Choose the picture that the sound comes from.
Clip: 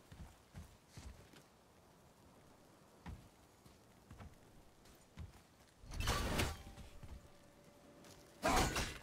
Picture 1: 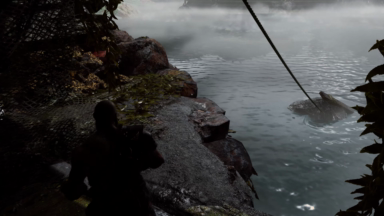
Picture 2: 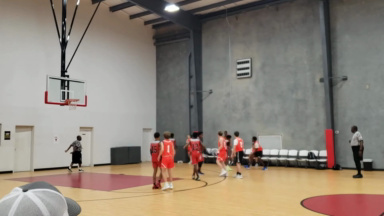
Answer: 1